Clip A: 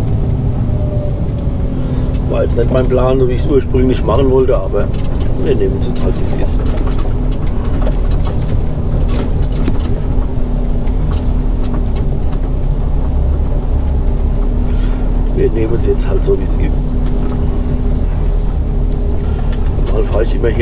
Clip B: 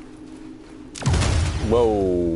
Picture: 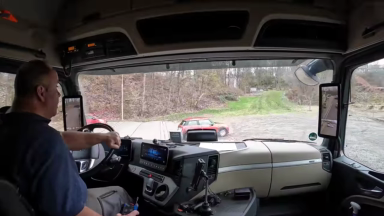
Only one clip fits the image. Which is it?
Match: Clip A